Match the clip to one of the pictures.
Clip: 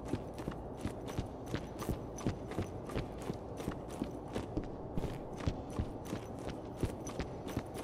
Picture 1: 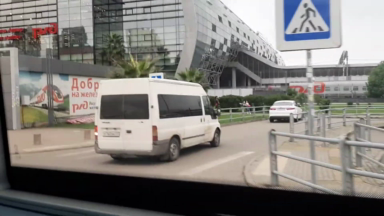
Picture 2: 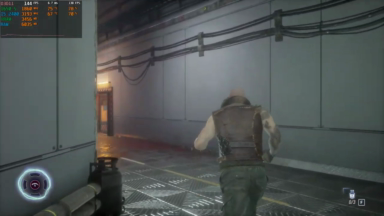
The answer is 2